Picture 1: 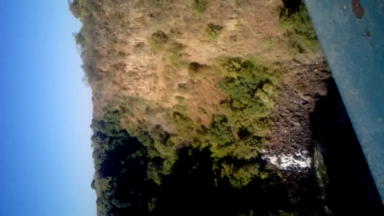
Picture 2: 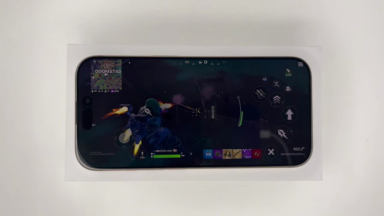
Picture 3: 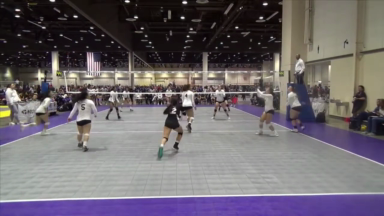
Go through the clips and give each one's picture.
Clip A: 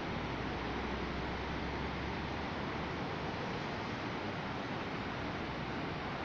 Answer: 1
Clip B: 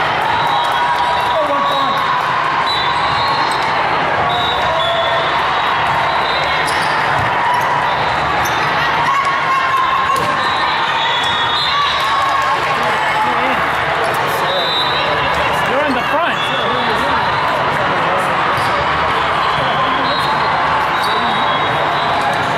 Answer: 3